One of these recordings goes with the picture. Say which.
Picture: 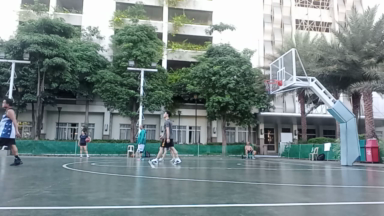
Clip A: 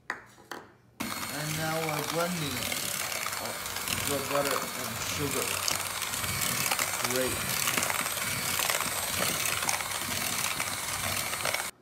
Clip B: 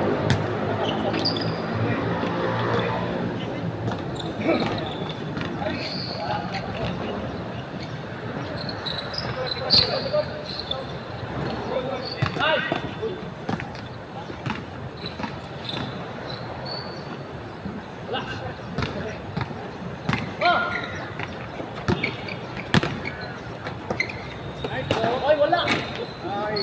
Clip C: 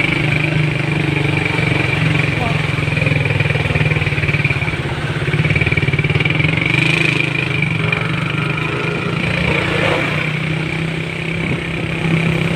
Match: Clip B